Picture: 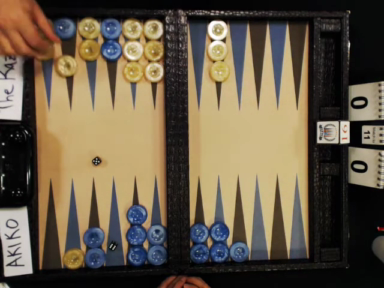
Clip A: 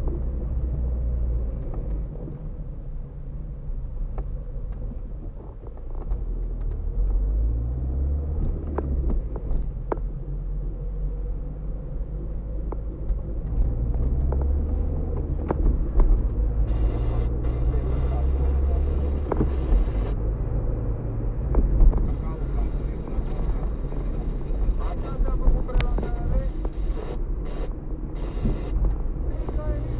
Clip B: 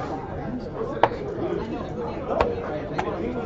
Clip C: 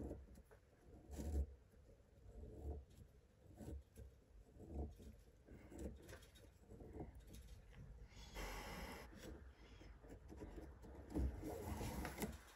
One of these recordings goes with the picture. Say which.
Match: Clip B